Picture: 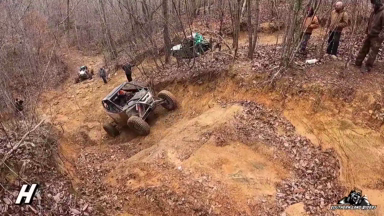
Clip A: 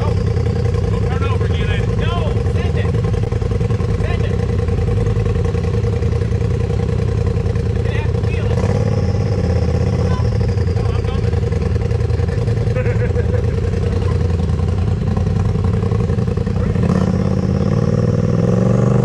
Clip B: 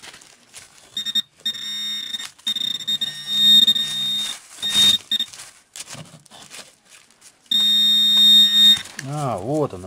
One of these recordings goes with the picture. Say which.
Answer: A